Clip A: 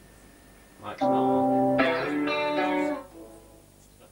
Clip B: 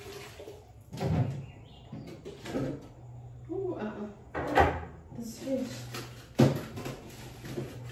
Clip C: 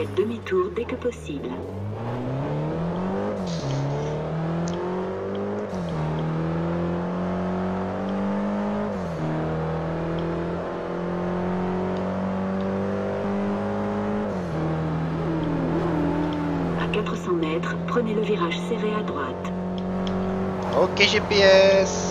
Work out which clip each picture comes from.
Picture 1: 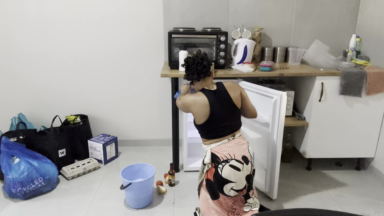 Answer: B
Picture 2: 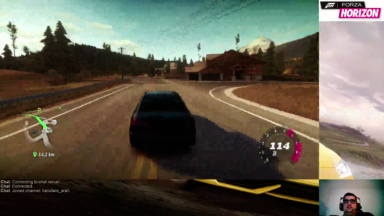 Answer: C